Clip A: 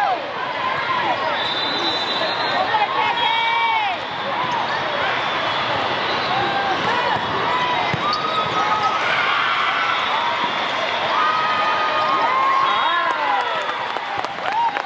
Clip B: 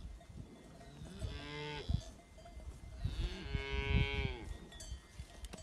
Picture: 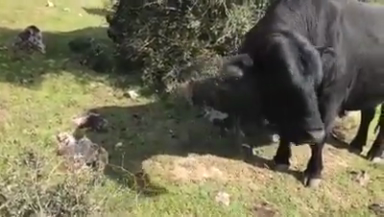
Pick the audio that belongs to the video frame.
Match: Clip B